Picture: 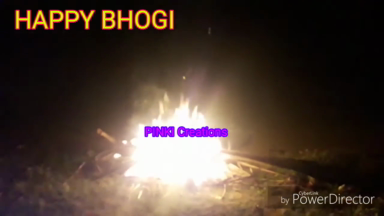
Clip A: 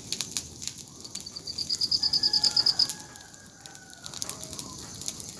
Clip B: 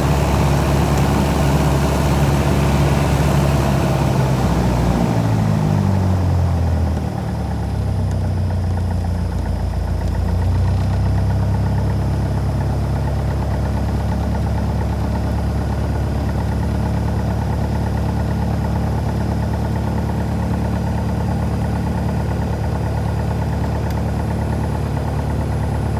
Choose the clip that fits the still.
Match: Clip A